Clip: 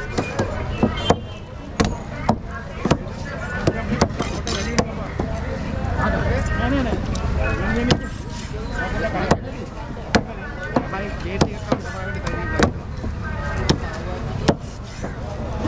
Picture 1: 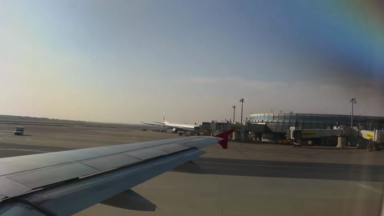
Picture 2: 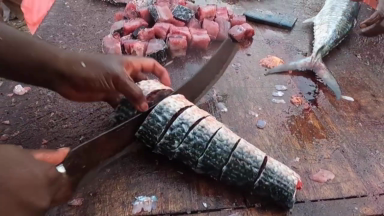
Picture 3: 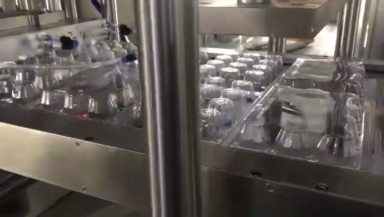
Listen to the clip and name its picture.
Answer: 2